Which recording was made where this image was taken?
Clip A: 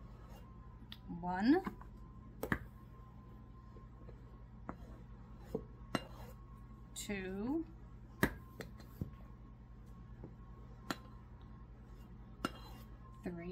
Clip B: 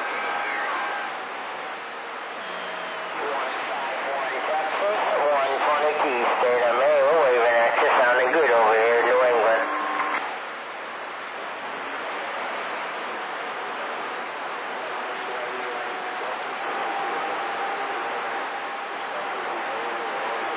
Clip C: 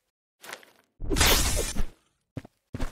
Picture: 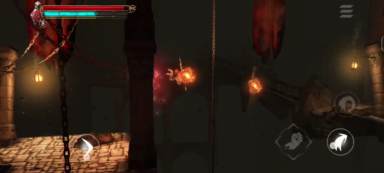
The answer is C